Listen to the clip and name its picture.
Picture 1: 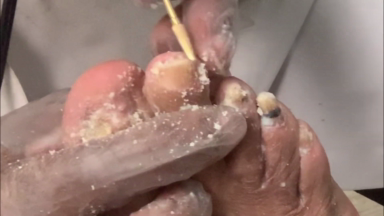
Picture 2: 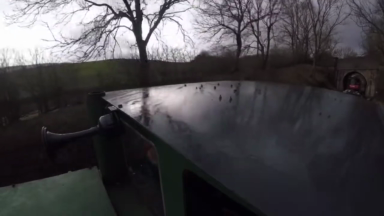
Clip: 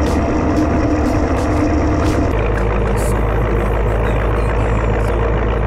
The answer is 2